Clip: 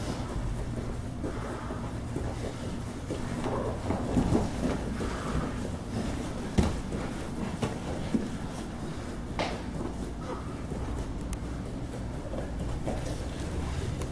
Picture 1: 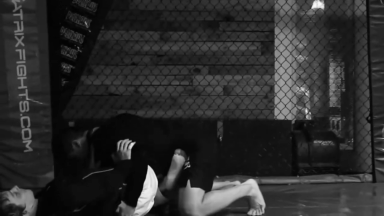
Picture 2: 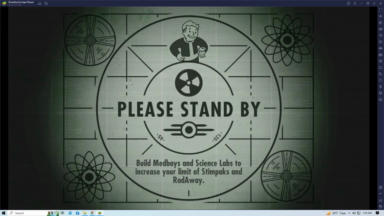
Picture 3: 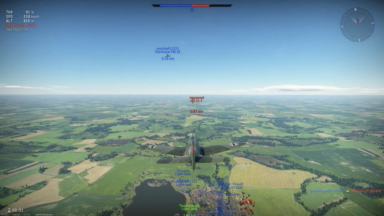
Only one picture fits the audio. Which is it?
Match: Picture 1